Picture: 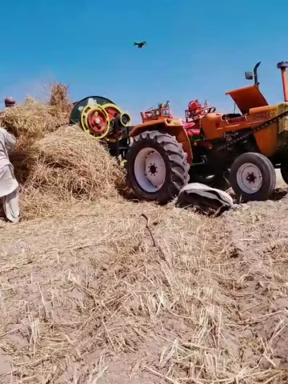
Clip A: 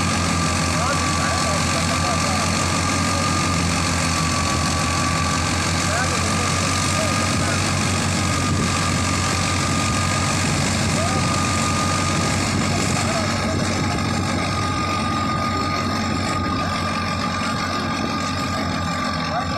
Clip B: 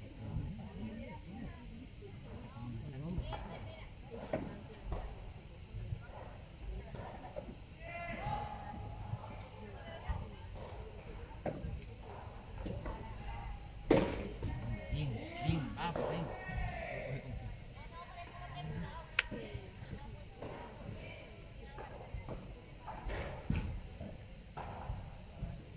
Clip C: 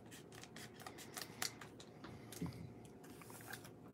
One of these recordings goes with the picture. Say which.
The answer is A